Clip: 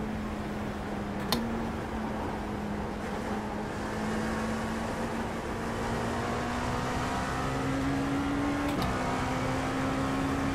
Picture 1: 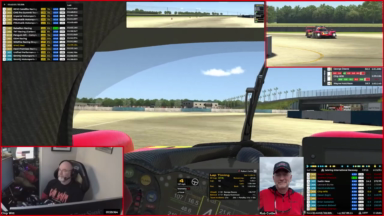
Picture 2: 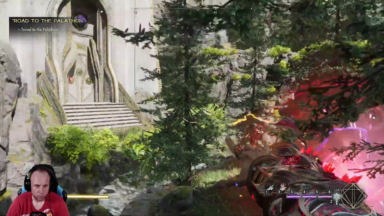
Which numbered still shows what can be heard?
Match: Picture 1